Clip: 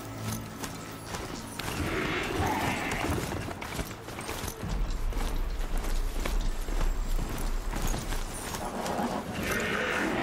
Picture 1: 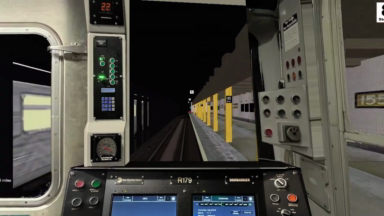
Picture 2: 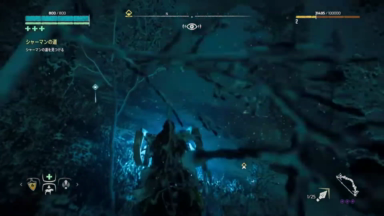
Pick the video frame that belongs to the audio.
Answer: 2